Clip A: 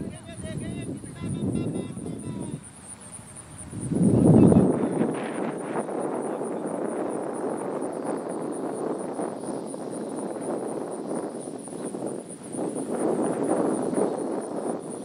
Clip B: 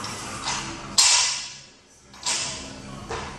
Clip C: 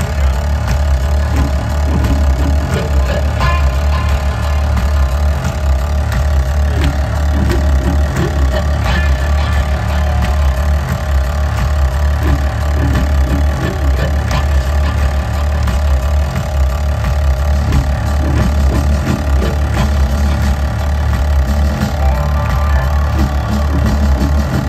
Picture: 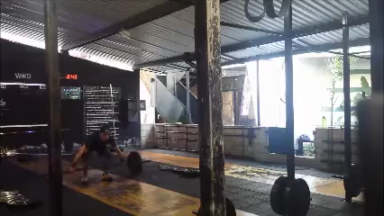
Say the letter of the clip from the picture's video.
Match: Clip B